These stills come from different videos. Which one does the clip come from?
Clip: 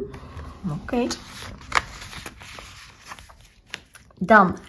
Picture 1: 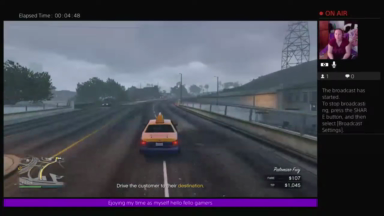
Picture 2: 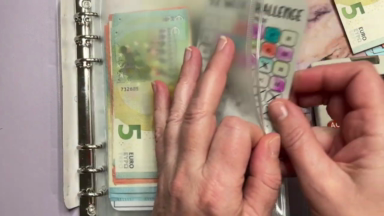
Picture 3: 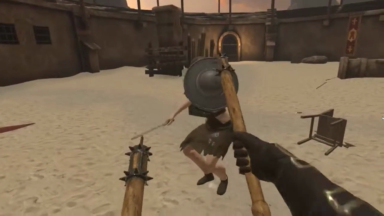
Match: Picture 2